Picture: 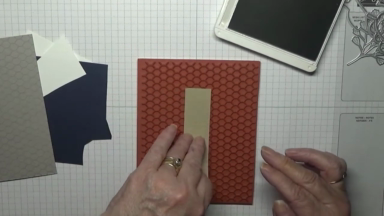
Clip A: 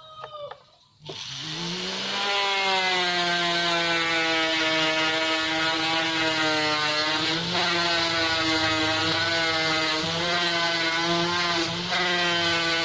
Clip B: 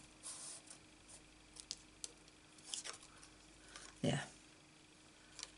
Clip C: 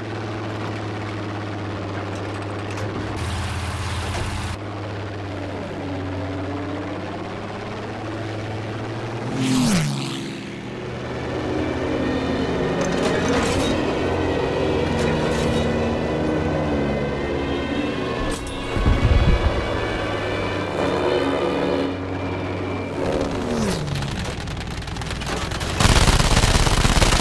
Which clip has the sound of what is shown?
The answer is B